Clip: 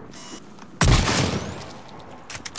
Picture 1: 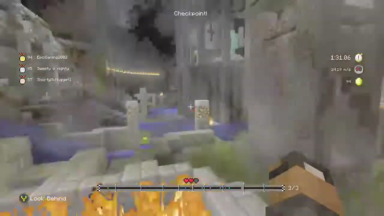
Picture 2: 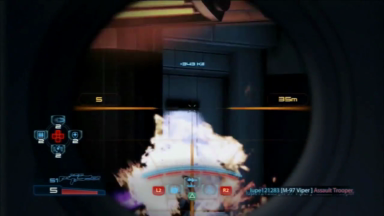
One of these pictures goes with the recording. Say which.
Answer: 2